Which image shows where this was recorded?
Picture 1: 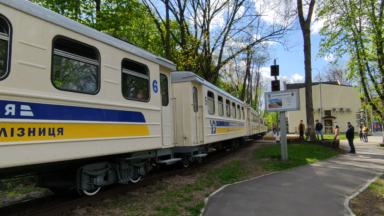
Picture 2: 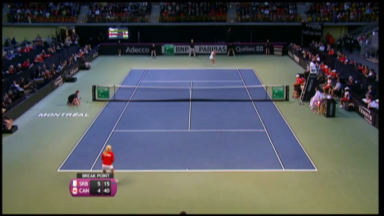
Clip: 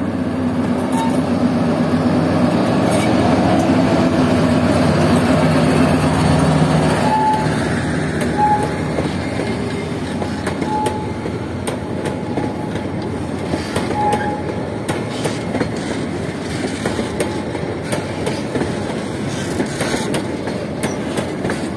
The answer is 1